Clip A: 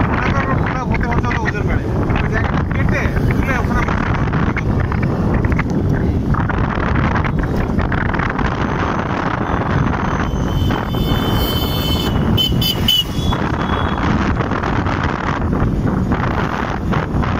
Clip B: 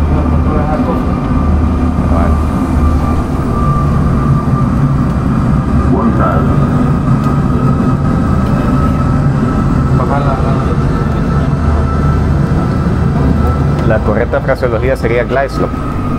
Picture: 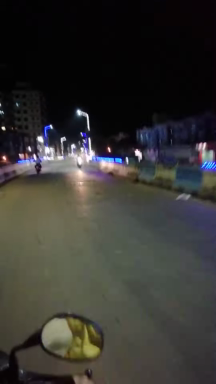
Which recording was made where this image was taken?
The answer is A